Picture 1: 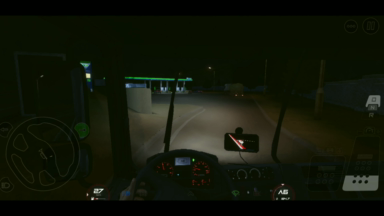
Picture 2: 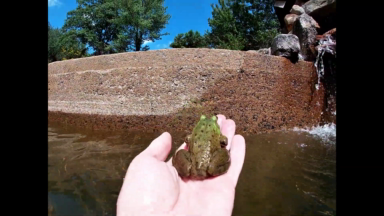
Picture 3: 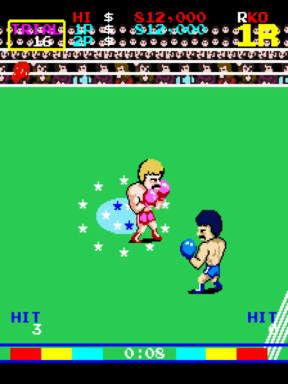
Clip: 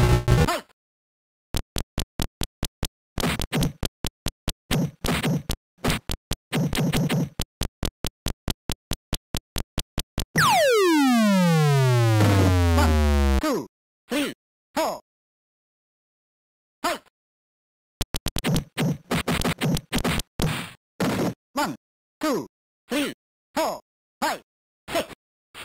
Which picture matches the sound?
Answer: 3